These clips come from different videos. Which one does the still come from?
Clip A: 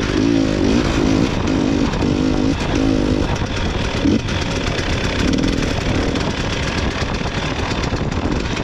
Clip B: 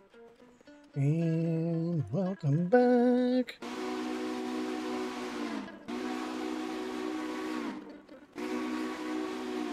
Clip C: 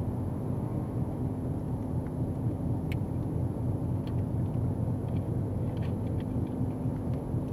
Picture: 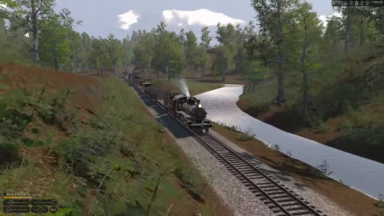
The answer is B